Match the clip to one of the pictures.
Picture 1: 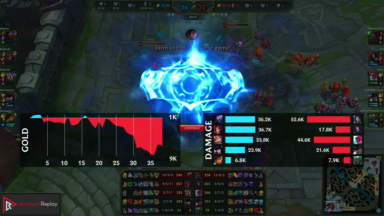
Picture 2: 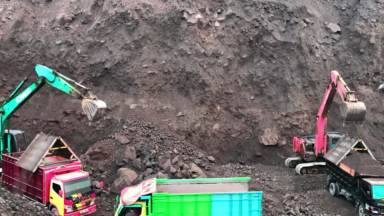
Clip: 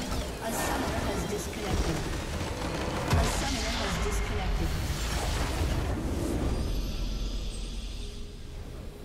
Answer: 1